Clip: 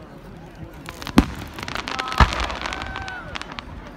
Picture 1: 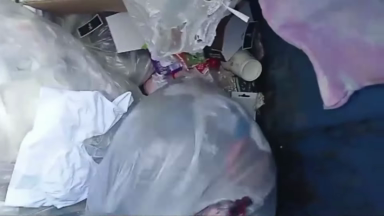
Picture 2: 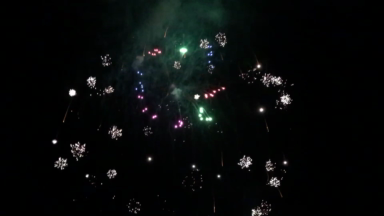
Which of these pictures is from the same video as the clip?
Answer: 2